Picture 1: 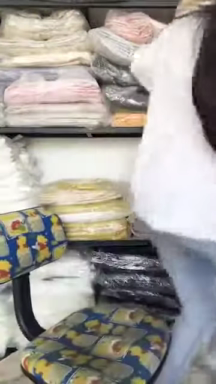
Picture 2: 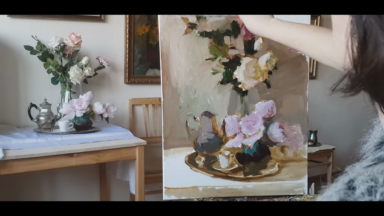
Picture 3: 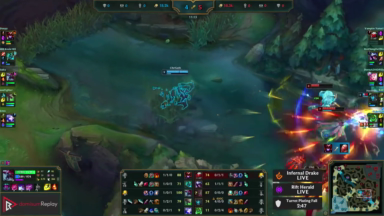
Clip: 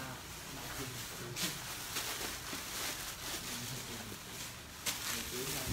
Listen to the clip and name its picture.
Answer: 1